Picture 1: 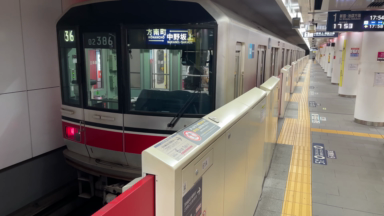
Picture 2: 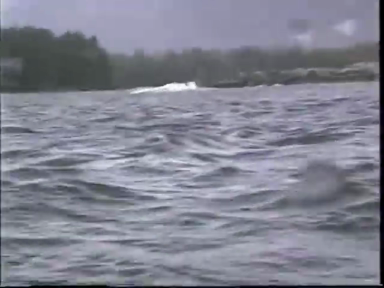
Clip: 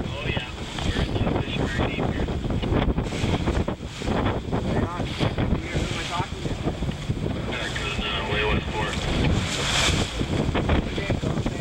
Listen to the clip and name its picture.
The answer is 2